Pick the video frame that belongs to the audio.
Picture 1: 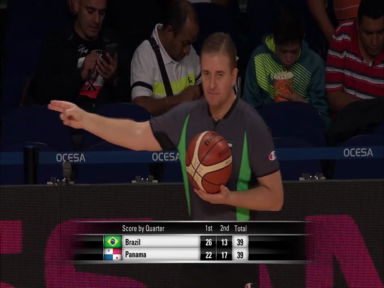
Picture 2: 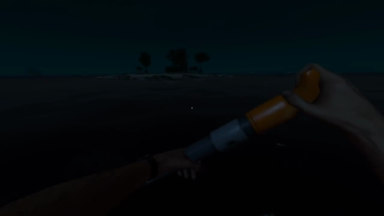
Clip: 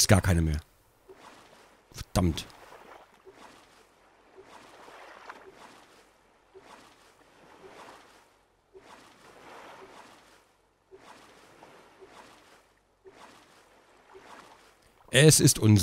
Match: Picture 2